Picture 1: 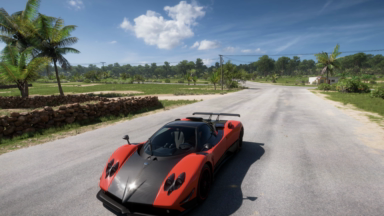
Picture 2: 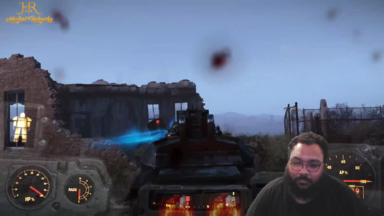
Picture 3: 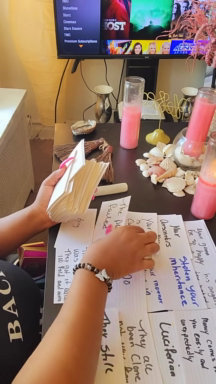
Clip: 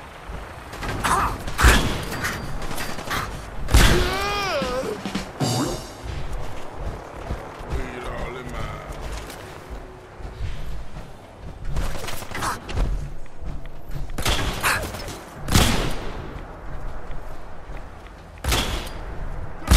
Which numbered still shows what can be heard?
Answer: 2